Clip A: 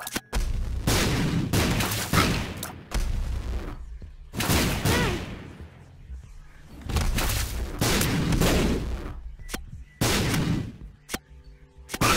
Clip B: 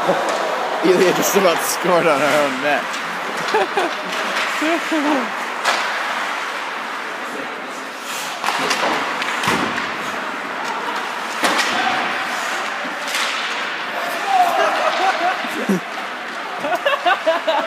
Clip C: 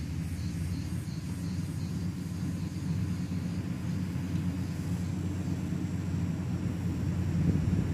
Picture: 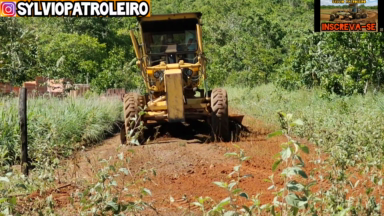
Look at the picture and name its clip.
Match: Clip C